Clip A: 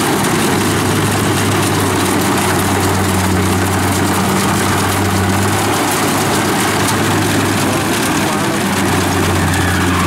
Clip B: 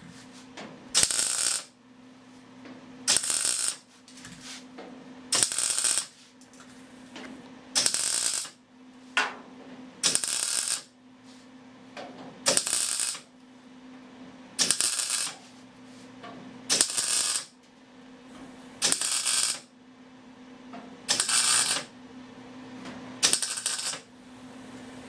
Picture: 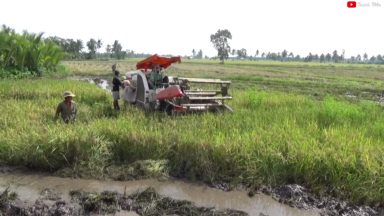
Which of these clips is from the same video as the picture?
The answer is A